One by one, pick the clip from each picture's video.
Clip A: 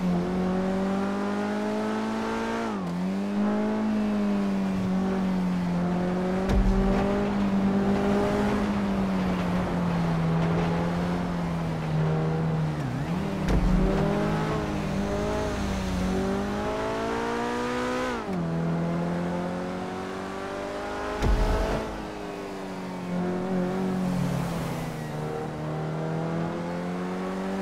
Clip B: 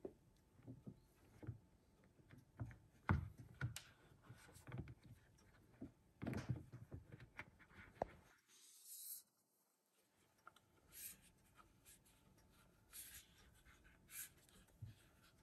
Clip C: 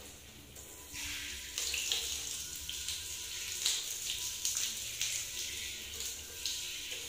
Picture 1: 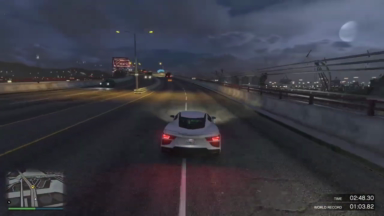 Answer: A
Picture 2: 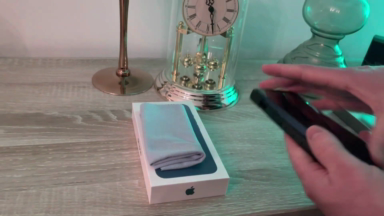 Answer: B